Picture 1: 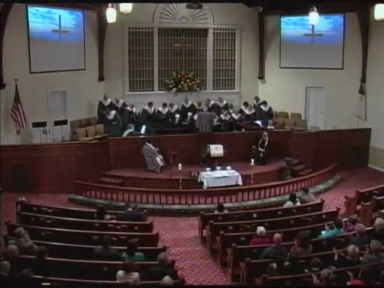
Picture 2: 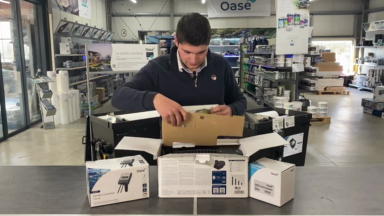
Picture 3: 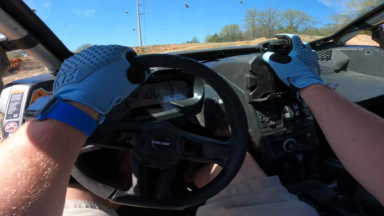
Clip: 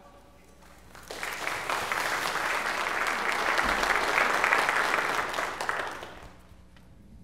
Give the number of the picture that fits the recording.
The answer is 1